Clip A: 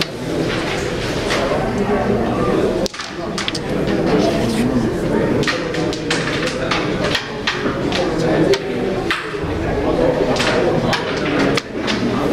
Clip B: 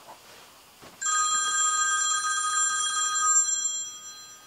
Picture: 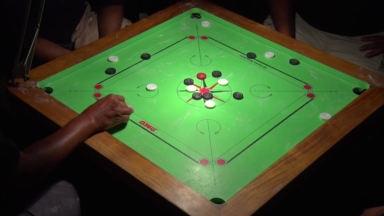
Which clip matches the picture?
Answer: A